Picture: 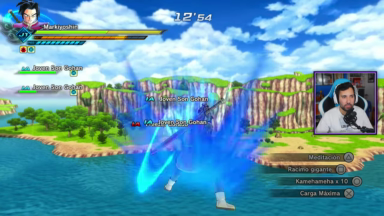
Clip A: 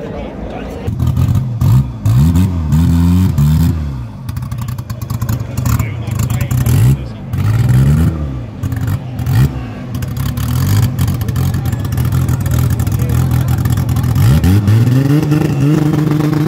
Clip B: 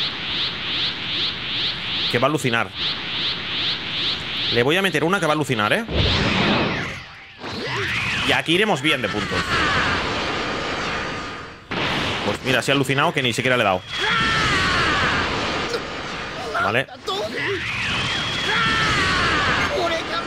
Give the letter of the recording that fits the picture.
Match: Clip B